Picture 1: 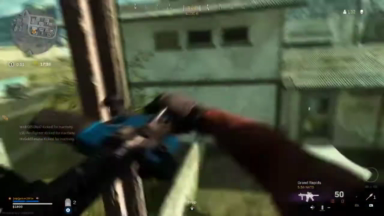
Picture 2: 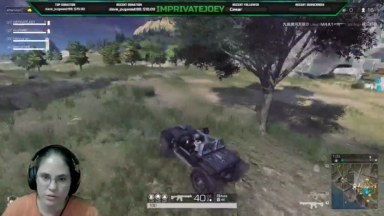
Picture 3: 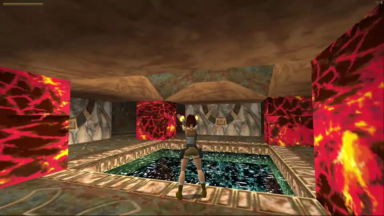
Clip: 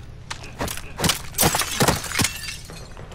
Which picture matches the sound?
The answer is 1